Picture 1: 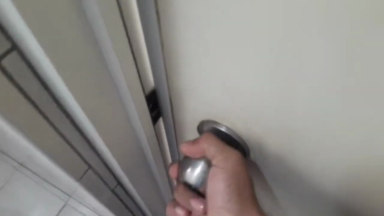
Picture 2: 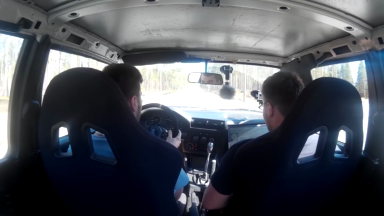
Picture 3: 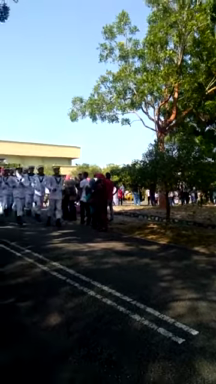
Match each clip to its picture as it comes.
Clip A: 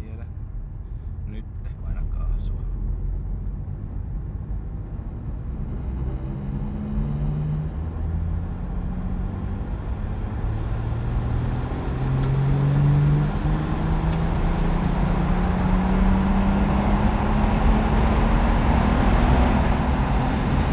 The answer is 2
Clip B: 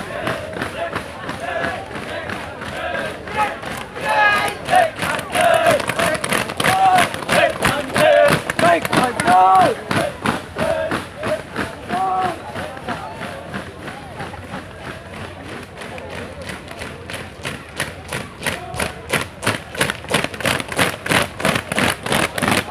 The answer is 3